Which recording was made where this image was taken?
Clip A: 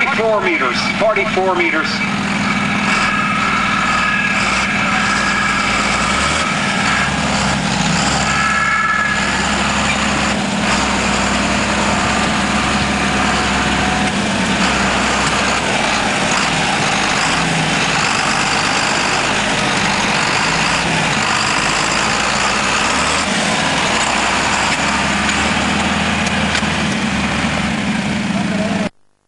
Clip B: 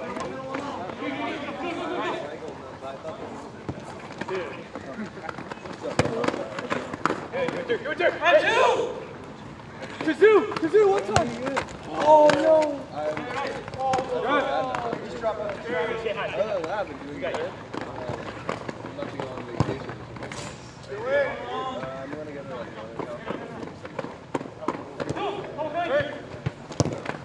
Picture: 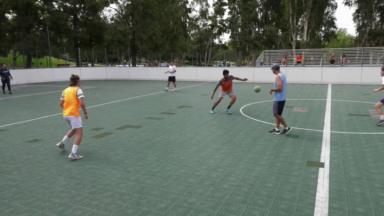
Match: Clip B